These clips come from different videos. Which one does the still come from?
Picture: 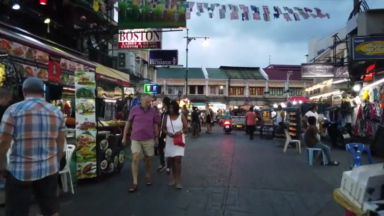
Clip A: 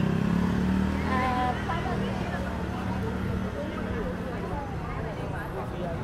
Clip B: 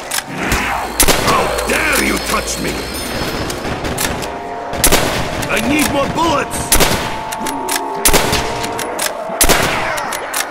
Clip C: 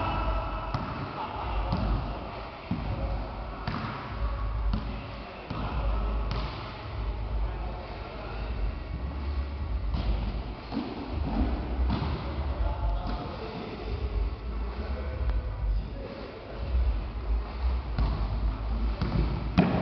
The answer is A